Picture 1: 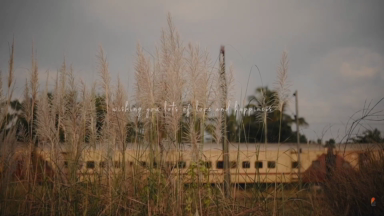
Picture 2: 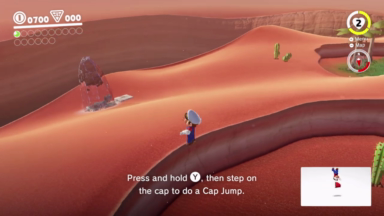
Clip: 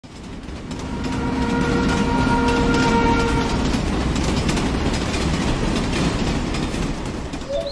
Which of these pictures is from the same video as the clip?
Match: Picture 1